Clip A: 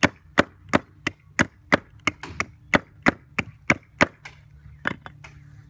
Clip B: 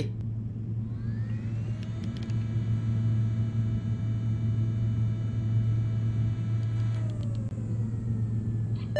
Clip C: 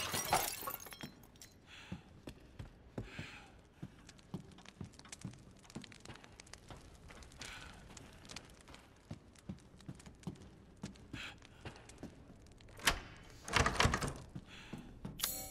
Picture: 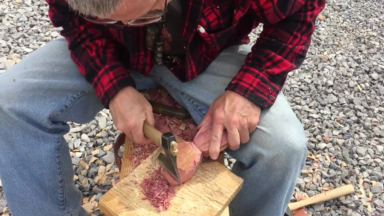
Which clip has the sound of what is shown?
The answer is A